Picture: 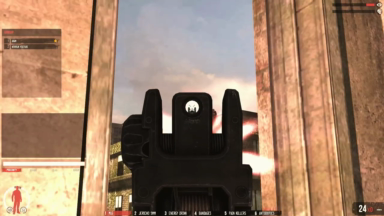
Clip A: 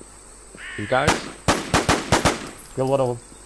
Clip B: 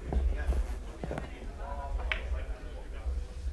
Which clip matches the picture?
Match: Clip A